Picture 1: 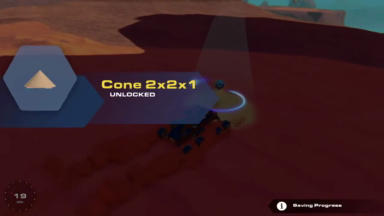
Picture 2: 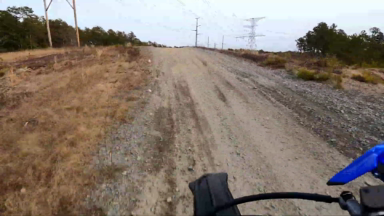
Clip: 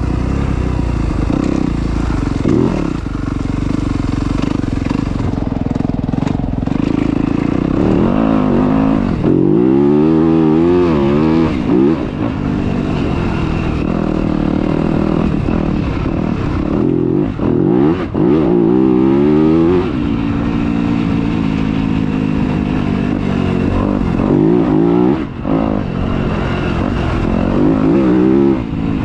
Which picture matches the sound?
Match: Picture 2